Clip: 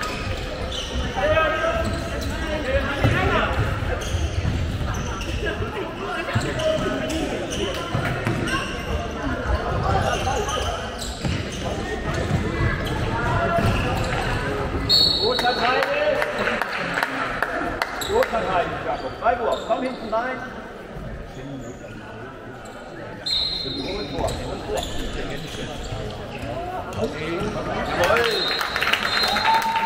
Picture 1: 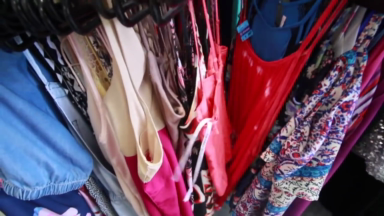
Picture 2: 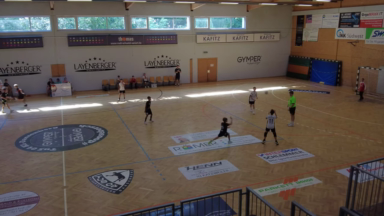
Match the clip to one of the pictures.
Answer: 2